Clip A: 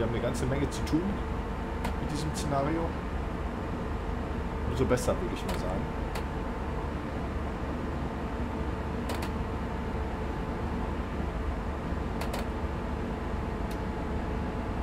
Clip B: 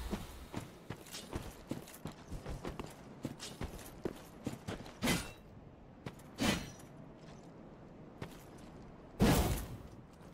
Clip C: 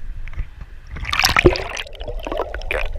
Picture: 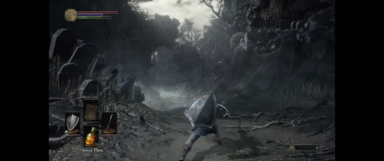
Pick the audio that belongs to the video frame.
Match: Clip B